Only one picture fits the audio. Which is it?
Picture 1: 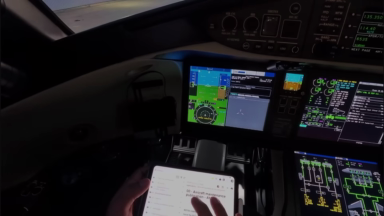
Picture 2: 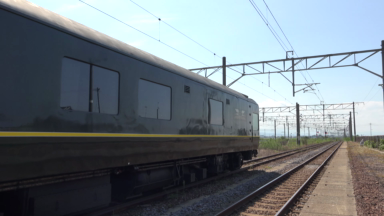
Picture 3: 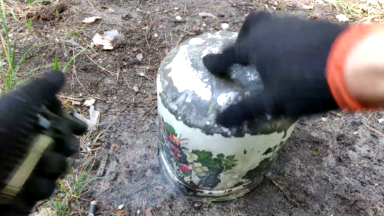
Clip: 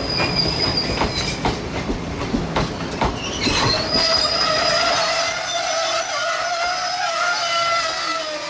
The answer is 2